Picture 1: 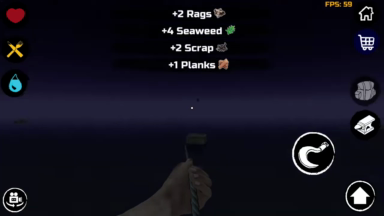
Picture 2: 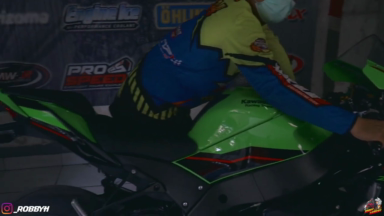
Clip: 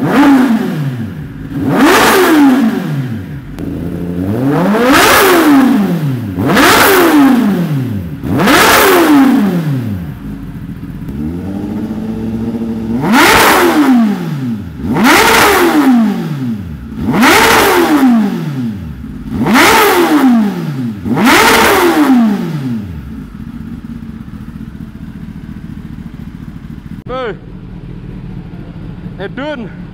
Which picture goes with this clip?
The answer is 2